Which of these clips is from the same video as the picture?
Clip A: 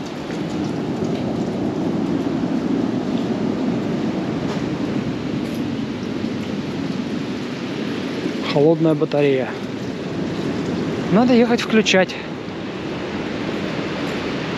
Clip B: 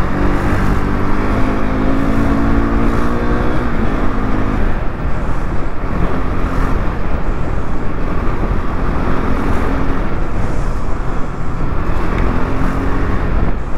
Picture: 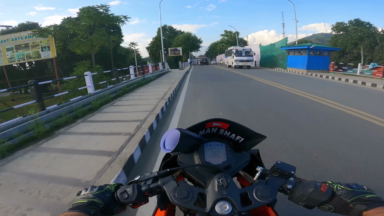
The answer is B